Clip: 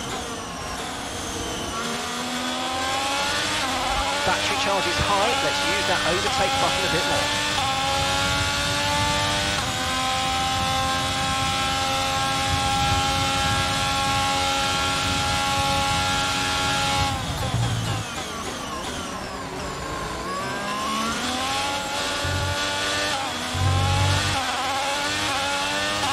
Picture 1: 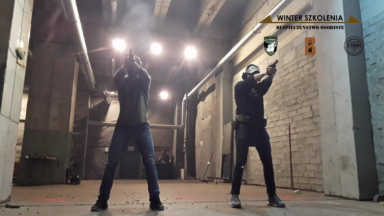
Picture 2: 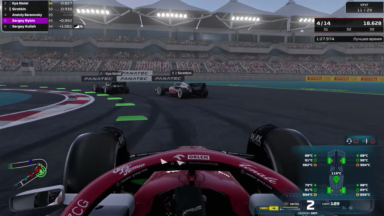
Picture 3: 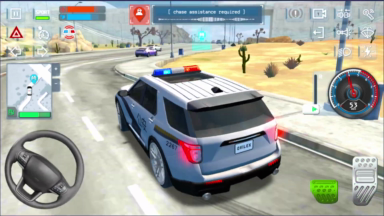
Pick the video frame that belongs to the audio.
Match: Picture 2